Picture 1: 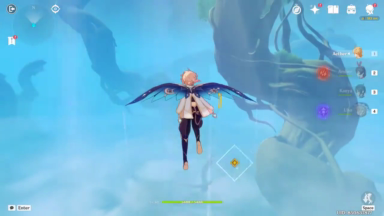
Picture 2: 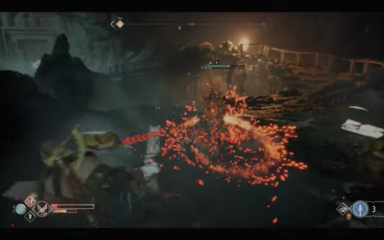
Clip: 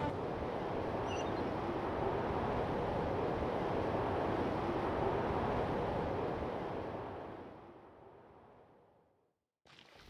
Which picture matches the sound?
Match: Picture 1